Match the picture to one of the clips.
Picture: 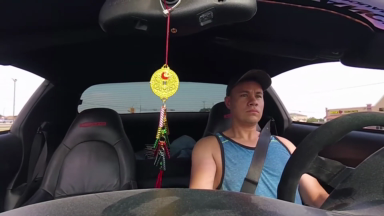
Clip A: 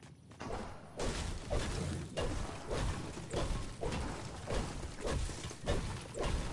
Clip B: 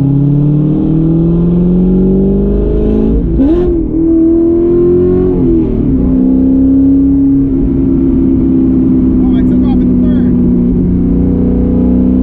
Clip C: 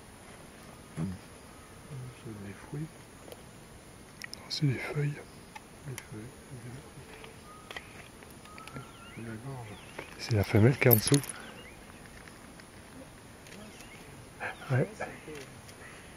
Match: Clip B